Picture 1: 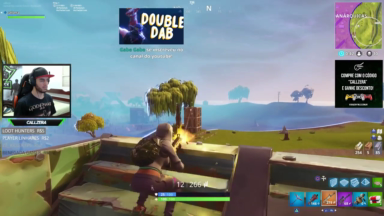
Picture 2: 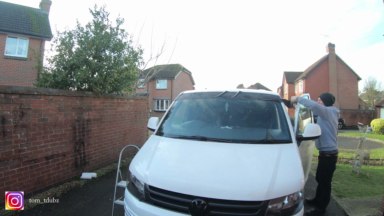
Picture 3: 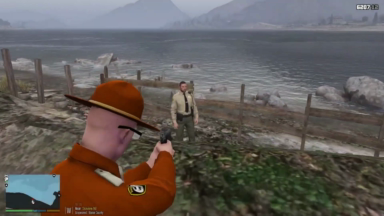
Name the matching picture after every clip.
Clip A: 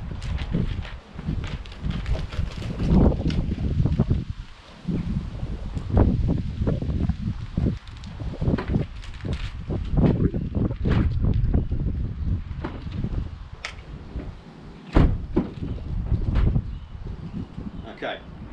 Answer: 2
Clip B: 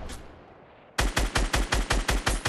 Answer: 1